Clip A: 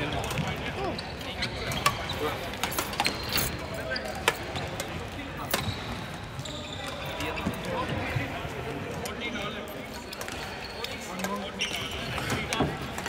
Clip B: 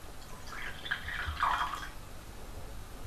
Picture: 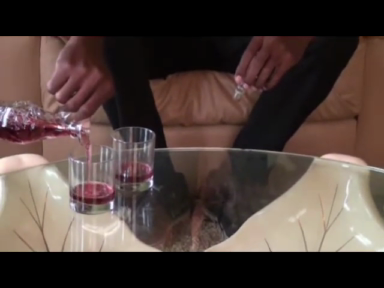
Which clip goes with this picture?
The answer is B